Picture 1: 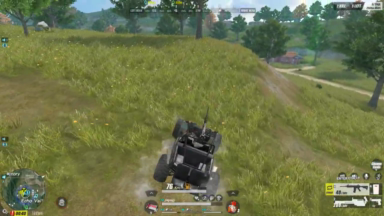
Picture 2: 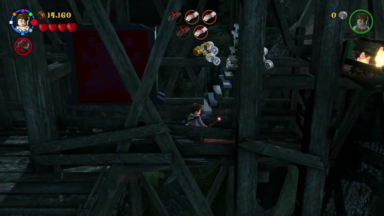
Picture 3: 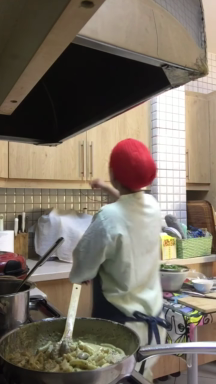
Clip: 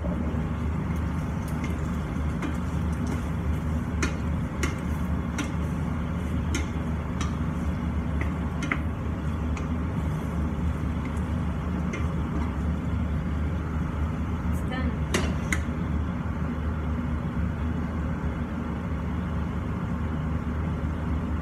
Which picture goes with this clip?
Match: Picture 3